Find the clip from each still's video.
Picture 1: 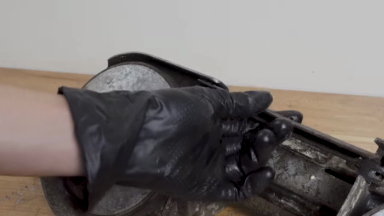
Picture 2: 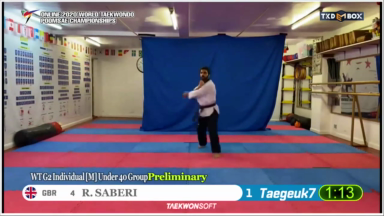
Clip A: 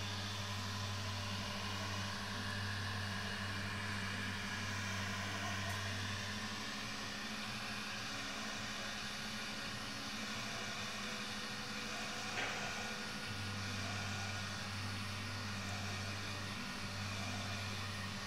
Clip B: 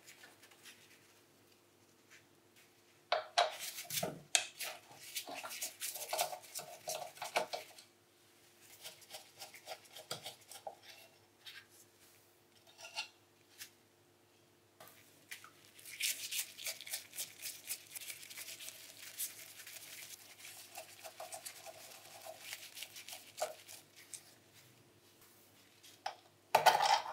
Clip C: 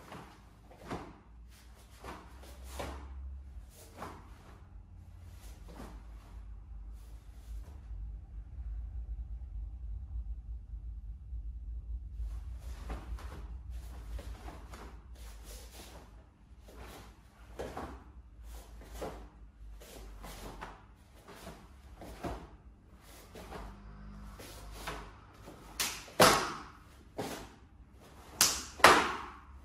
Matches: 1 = B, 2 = C